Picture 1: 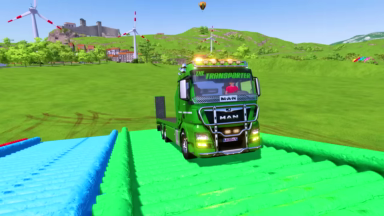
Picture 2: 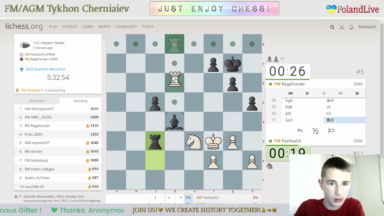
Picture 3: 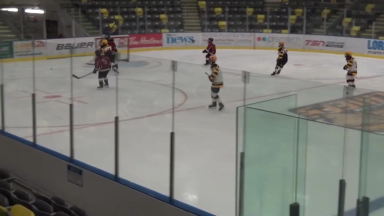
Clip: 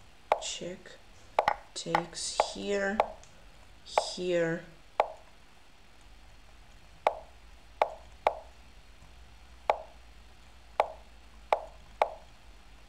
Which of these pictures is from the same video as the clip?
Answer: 2